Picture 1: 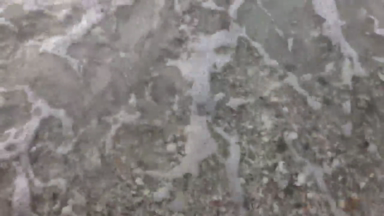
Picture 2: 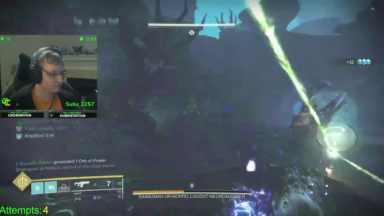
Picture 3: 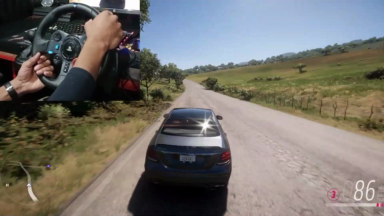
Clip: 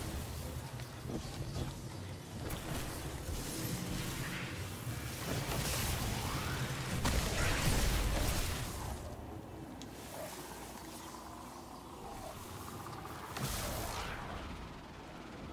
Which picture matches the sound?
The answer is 2